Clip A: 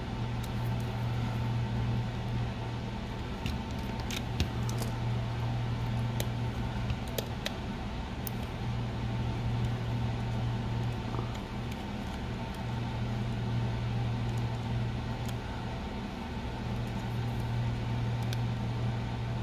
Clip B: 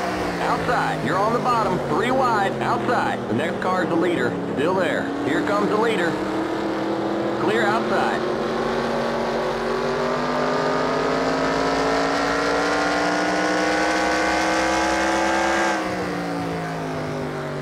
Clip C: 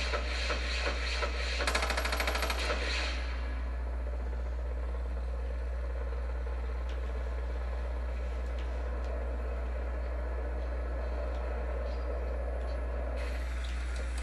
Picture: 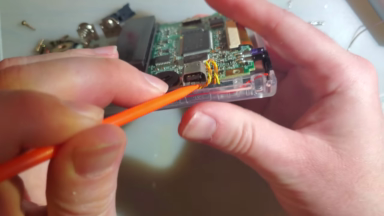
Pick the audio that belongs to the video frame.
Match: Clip A